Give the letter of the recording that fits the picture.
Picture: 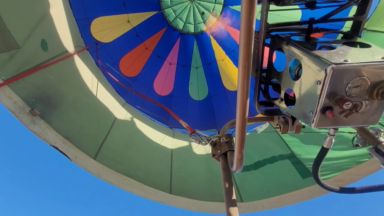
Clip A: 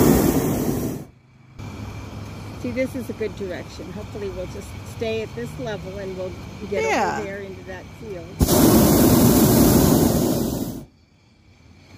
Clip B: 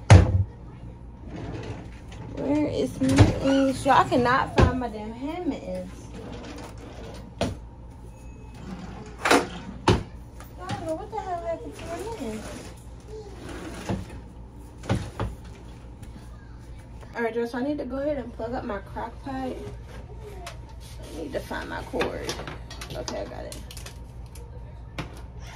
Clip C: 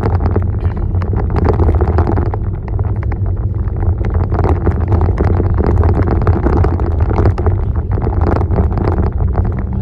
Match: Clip A